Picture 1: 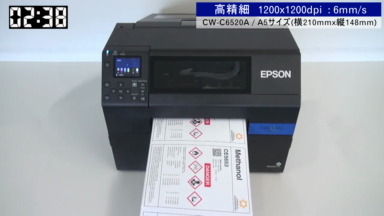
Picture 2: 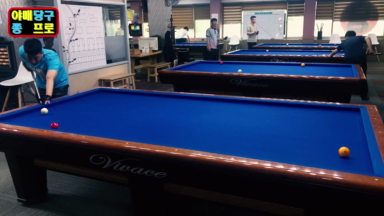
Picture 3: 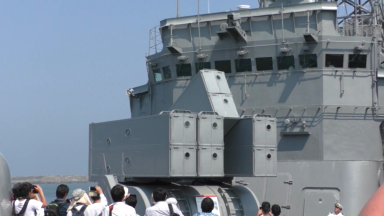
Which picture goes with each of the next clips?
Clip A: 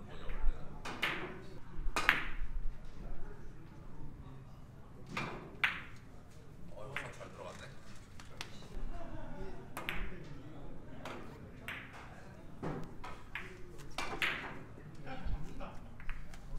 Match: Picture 2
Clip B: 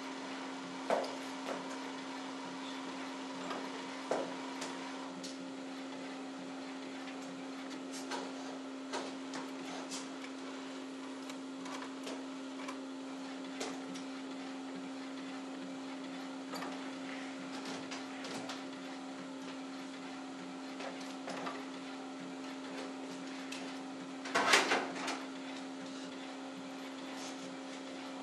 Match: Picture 1